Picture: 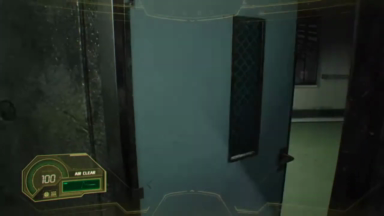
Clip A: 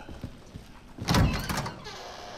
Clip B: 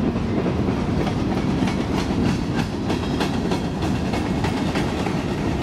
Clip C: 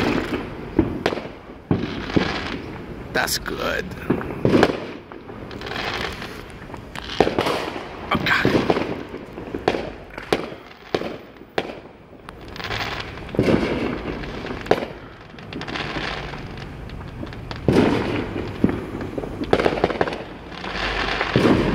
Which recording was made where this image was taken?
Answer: A